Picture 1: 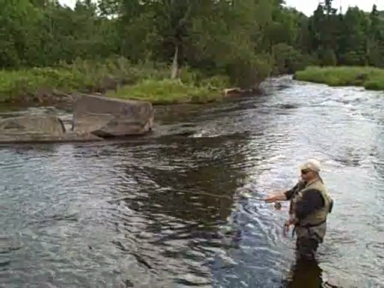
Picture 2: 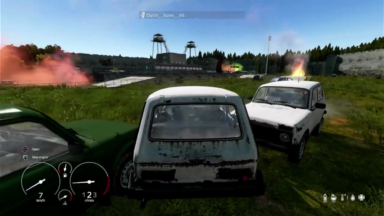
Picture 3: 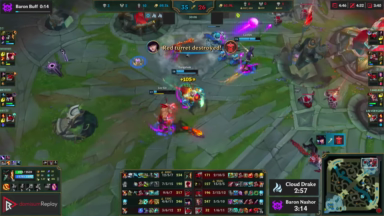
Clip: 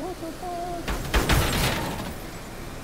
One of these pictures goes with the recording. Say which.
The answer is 2